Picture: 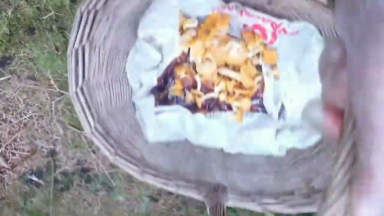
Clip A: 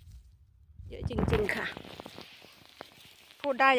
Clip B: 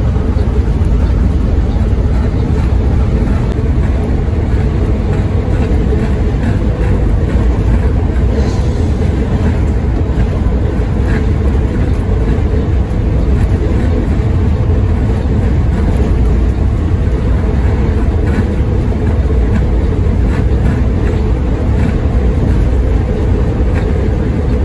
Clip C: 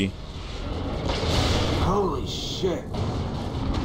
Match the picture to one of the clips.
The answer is A